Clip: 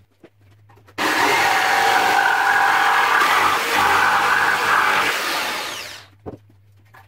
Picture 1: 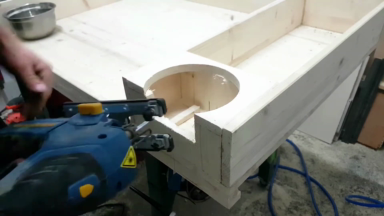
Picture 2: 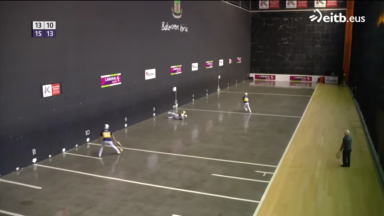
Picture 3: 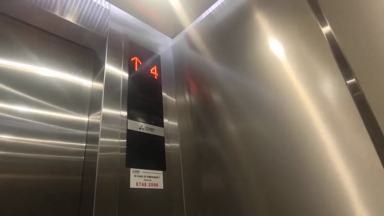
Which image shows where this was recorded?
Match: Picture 1